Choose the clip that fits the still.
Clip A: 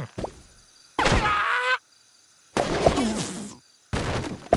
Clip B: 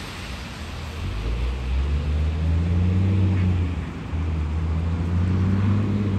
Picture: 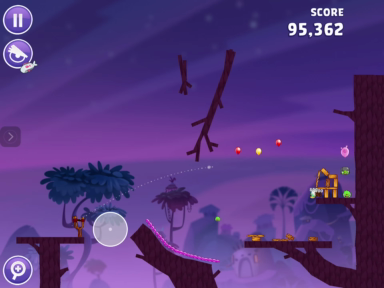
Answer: A